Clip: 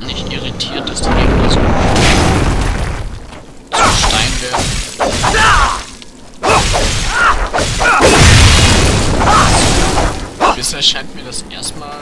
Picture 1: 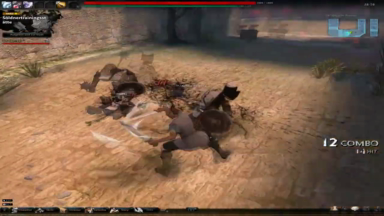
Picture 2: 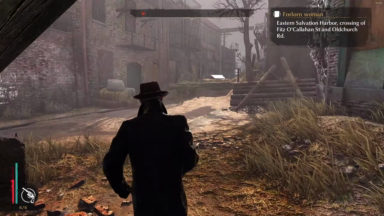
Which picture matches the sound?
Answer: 1